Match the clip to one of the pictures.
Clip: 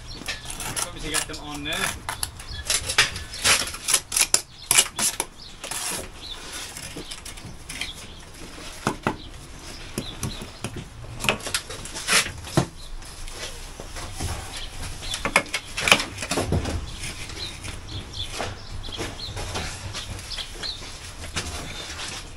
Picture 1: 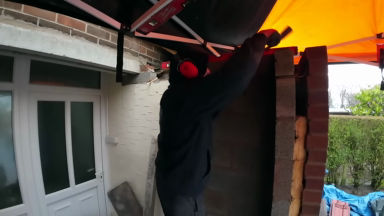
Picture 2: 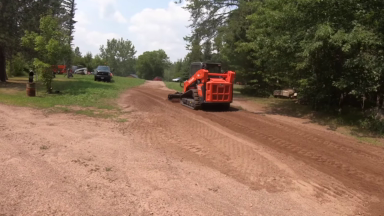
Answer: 1